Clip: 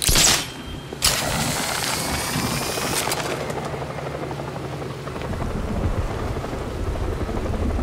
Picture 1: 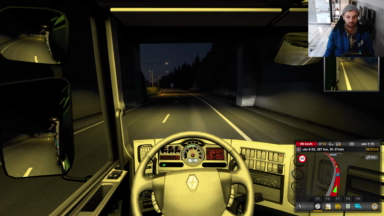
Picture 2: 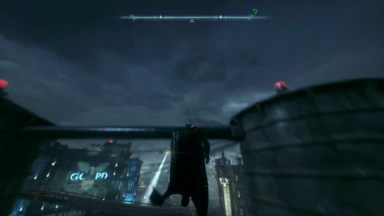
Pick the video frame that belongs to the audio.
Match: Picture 2